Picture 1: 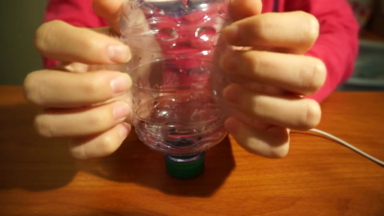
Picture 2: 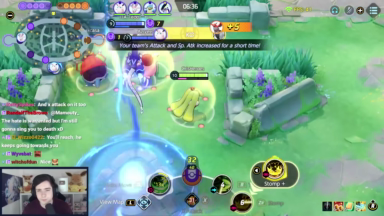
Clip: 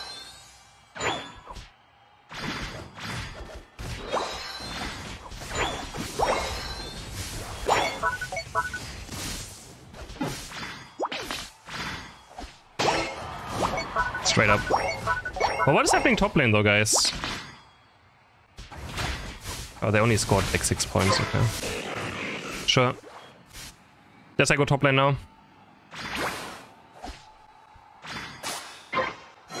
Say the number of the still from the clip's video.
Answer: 2